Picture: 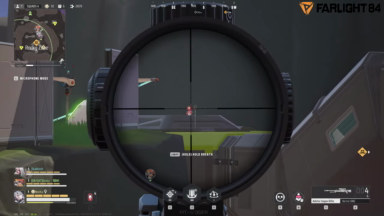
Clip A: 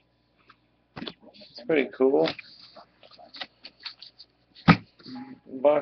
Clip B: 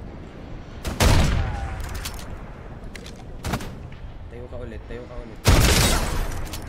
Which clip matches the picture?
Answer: B